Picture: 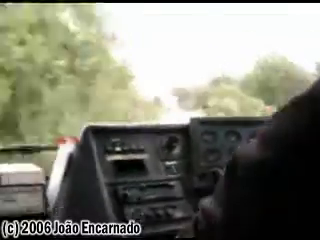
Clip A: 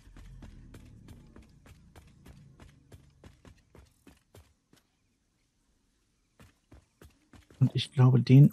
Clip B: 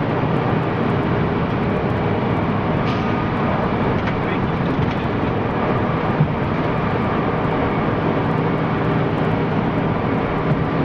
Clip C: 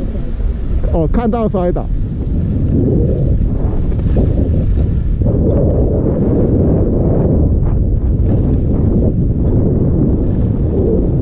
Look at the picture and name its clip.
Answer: B